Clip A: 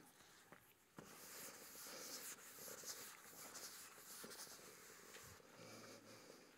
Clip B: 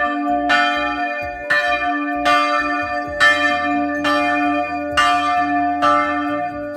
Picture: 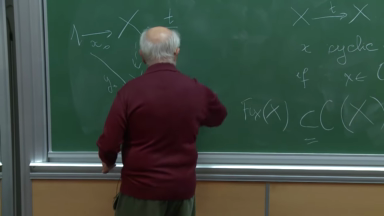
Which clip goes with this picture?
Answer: A